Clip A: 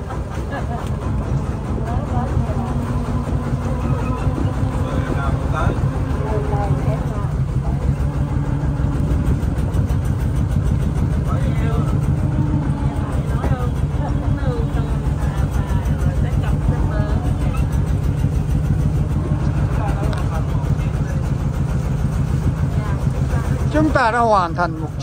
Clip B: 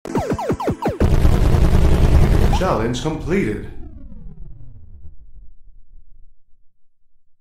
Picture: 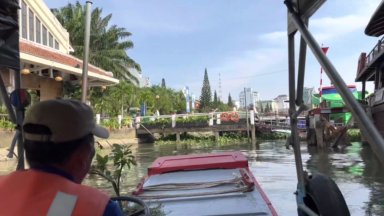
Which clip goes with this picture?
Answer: A